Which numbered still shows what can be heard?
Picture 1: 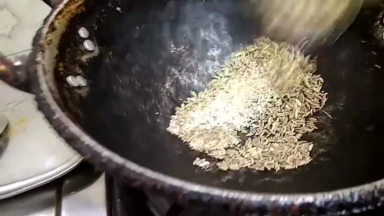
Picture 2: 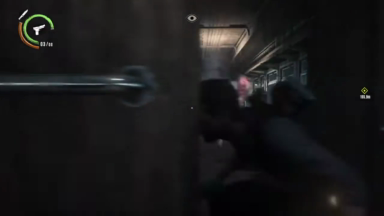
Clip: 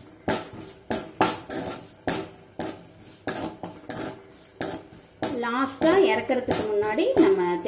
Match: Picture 1